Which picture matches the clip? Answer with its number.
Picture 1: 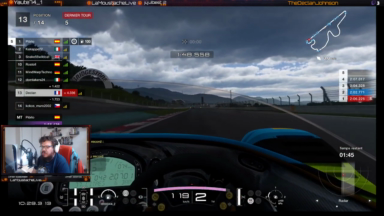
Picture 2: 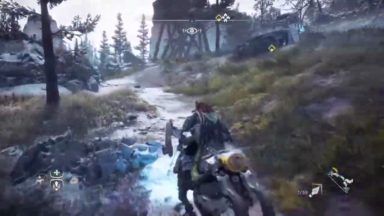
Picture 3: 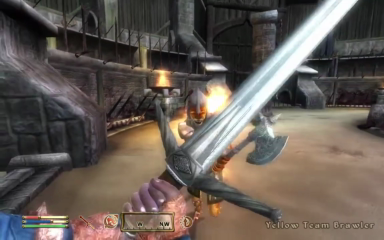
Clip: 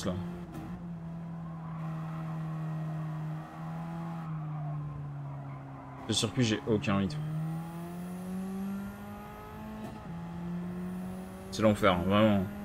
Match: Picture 1